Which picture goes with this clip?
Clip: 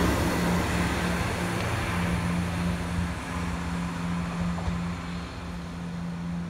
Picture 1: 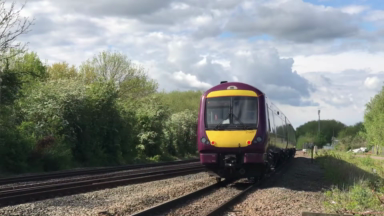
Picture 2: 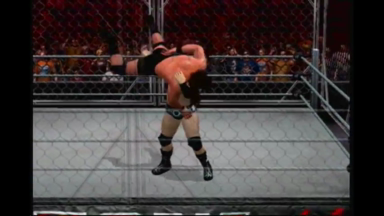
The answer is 1